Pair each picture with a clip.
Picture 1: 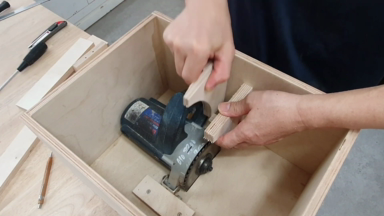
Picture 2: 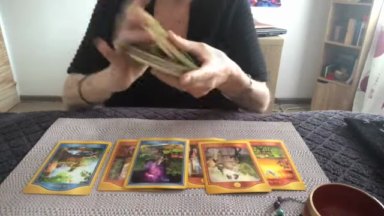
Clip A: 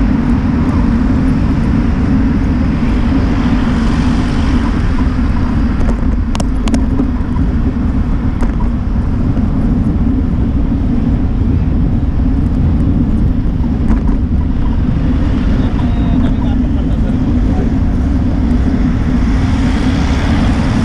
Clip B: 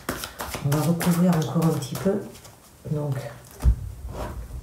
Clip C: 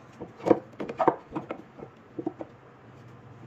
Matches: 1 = C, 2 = B